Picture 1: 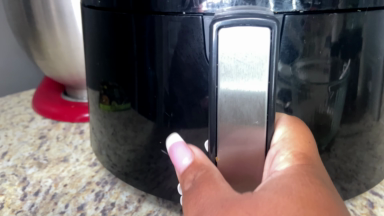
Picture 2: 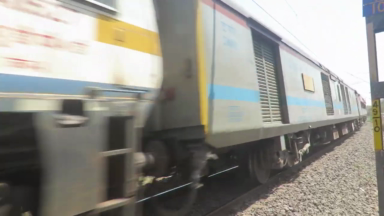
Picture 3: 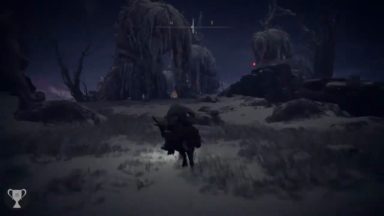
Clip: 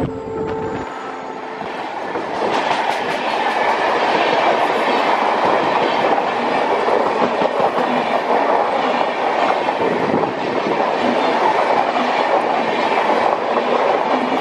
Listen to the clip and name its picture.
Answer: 2